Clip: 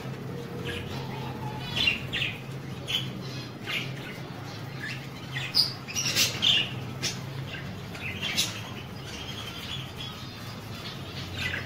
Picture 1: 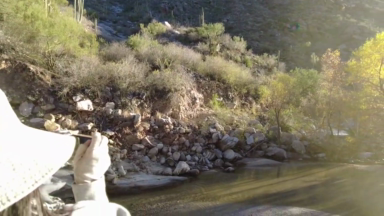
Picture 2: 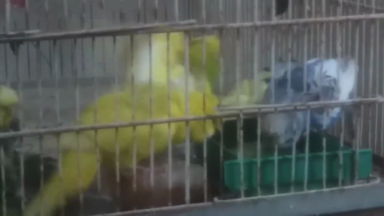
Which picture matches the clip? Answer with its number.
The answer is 2